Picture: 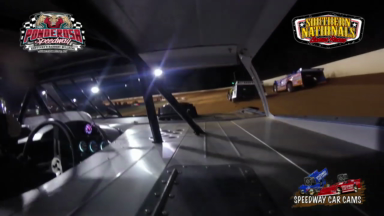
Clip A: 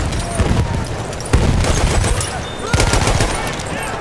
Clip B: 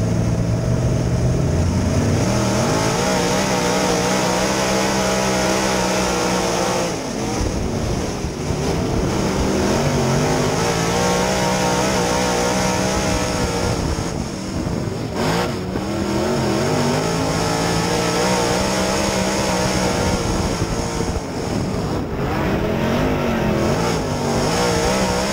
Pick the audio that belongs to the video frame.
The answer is B